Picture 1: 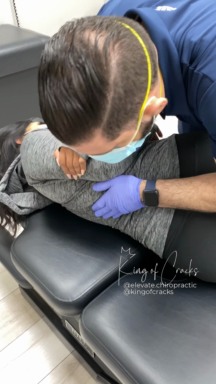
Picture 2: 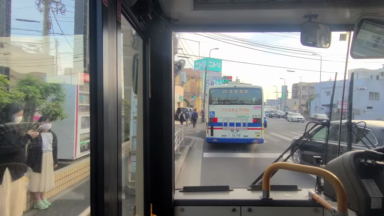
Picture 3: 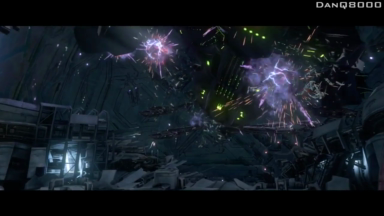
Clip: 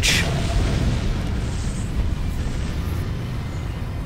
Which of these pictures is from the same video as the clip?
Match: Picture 3